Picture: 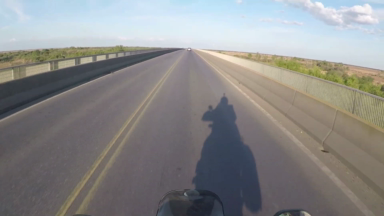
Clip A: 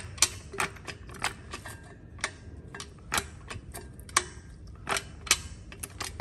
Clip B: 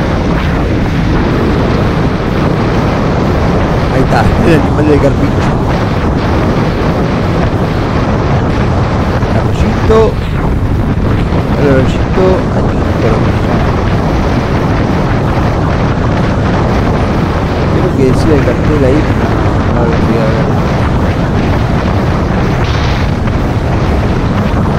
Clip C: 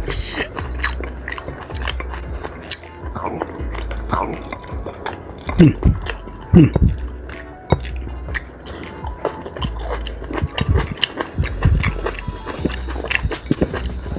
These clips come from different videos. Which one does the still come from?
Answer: B